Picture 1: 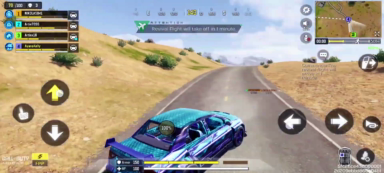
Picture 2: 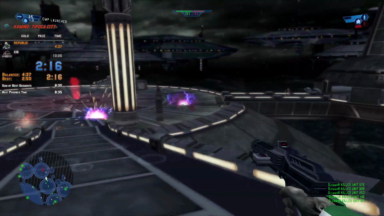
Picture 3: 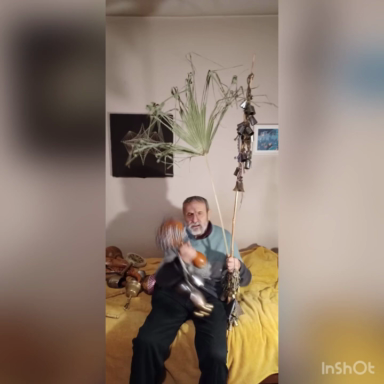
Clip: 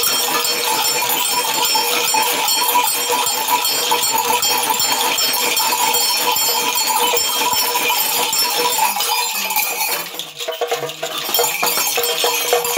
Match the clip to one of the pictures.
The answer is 3